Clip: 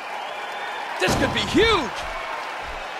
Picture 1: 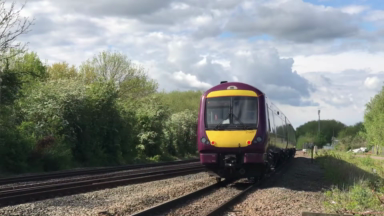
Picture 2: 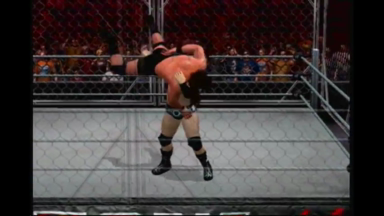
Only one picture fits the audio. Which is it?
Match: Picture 2